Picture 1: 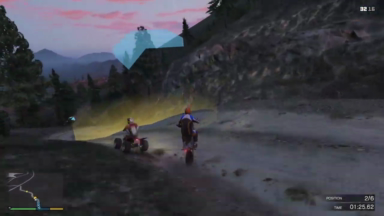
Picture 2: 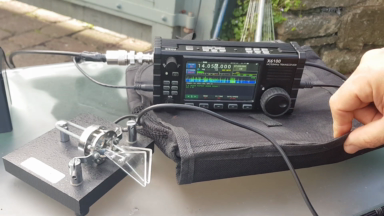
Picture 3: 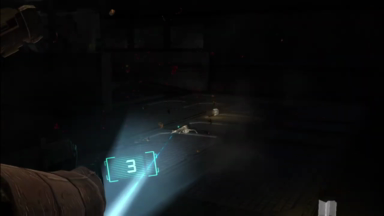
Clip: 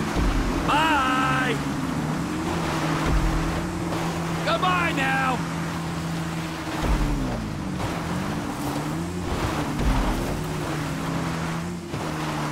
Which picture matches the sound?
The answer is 1